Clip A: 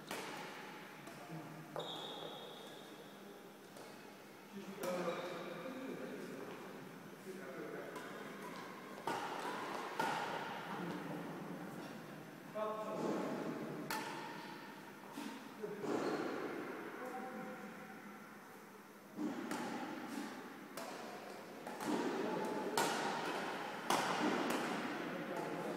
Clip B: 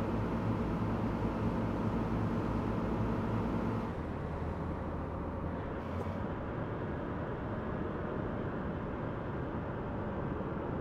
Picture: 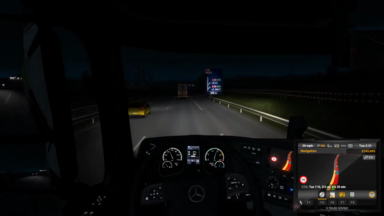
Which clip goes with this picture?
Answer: B